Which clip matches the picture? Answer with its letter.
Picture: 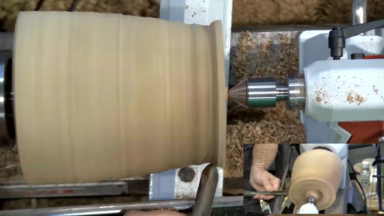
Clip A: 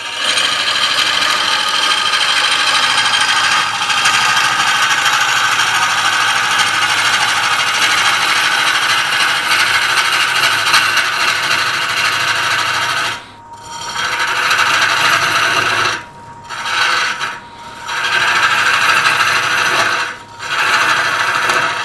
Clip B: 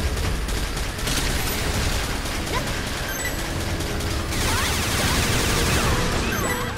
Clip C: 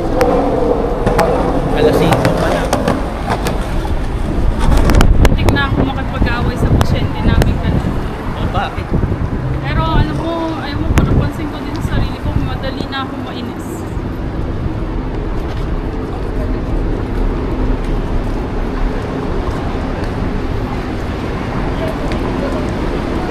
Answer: A